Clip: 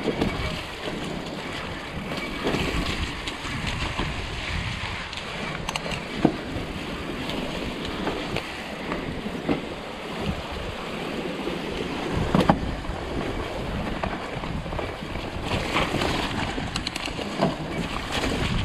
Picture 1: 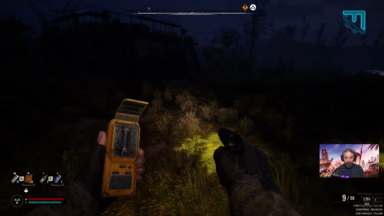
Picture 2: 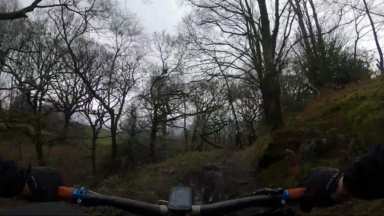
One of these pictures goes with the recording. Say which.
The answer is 2